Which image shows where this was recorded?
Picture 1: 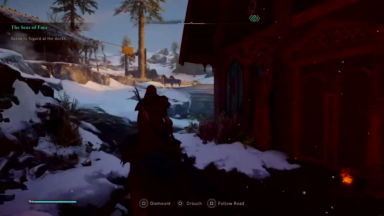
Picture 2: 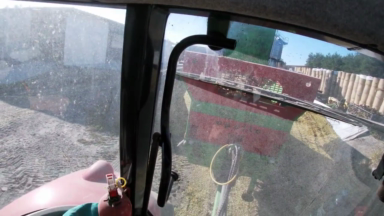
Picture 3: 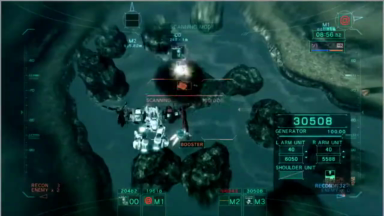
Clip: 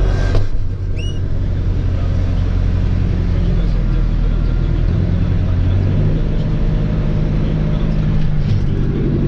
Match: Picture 2